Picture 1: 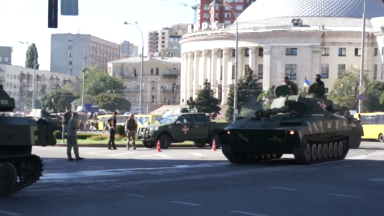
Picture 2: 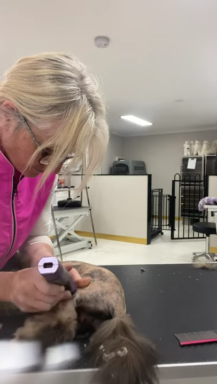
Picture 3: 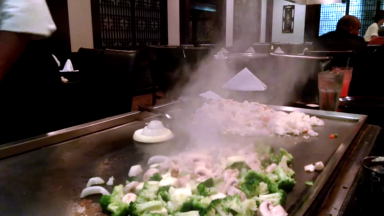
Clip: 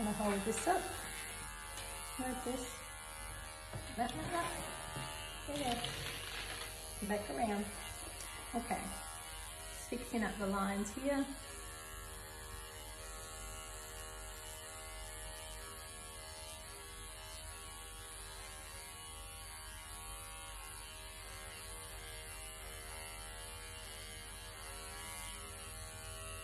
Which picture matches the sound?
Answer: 2